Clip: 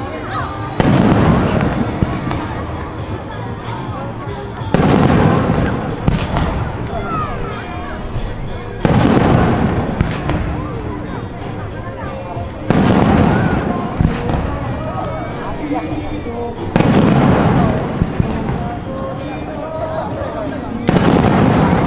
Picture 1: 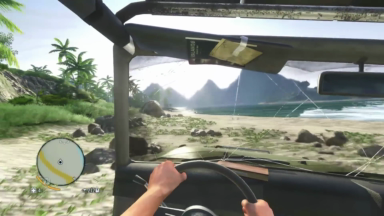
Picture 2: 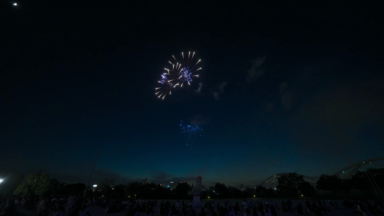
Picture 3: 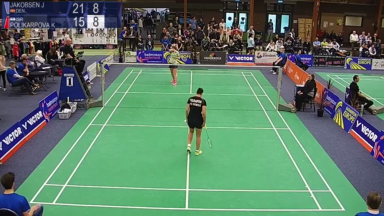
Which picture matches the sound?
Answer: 2